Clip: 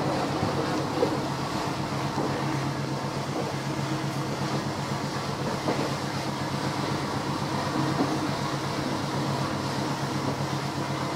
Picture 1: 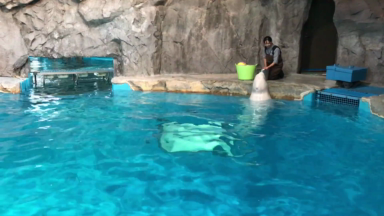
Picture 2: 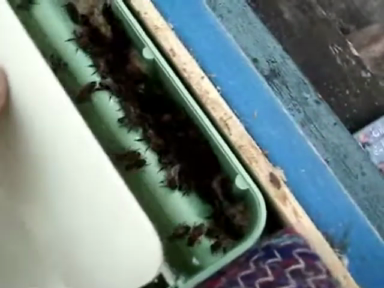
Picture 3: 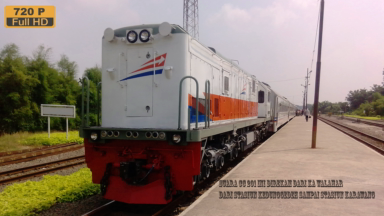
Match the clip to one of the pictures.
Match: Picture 3